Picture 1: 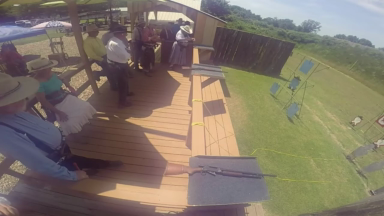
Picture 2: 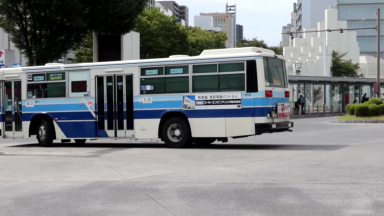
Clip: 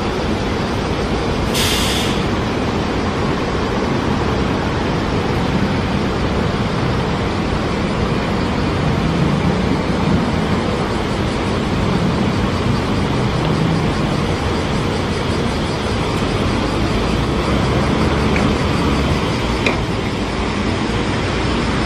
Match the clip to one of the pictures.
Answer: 2